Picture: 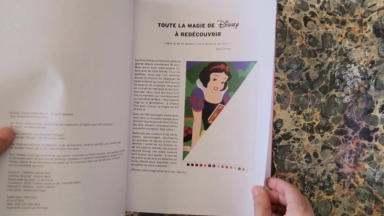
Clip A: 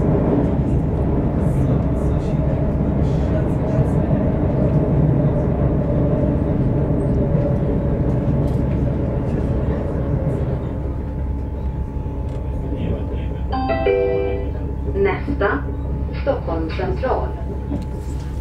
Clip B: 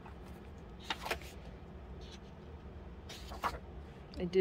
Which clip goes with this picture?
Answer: B